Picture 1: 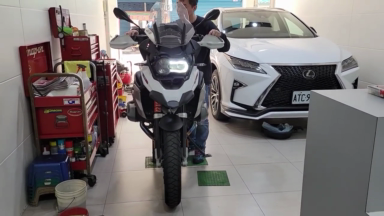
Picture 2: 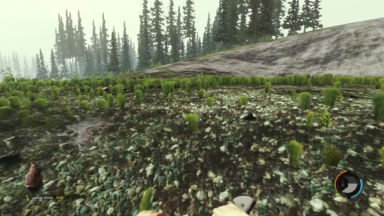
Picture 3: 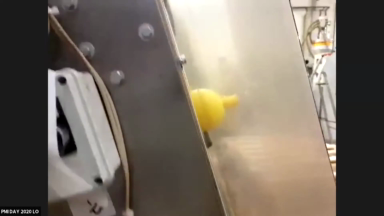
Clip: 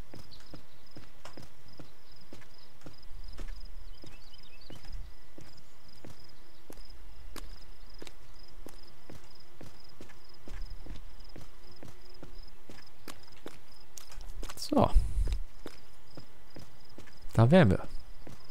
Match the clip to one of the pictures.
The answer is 2